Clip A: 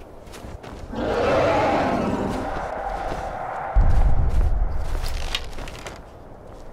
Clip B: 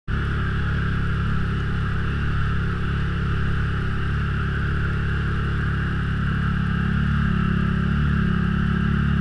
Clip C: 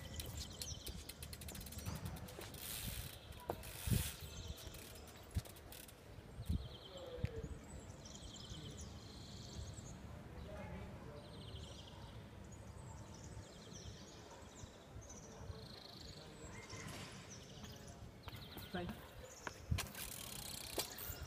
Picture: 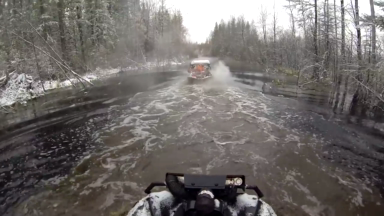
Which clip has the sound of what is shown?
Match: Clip B